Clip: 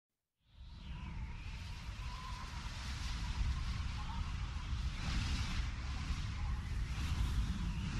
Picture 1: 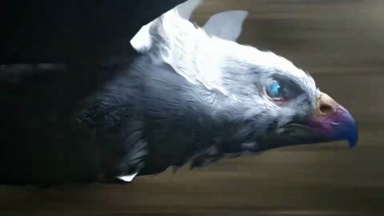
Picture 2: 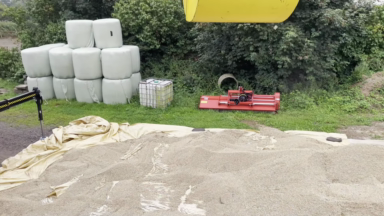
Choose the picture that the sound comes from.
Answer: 1